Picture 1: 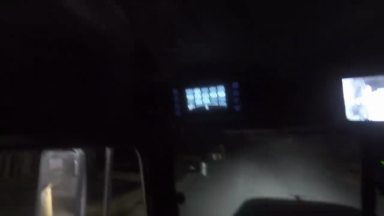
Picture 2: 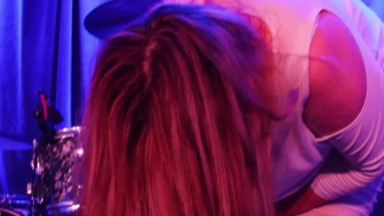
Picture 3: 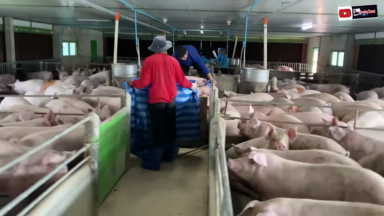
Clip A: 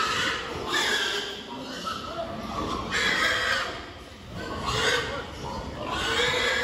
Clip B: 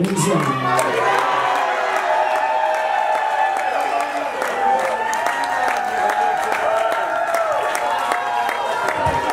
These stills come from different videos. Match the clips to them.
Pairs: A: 3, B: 2